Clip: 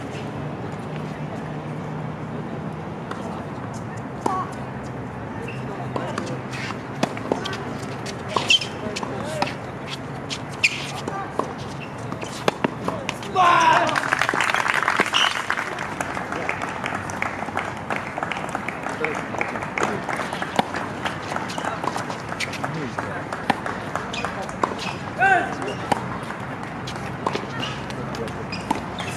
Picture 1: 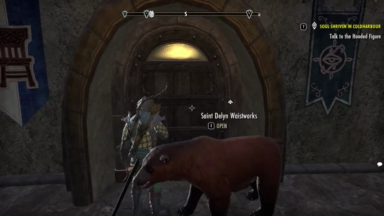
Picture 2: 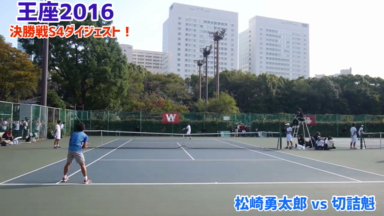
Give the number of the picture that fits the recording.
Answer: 2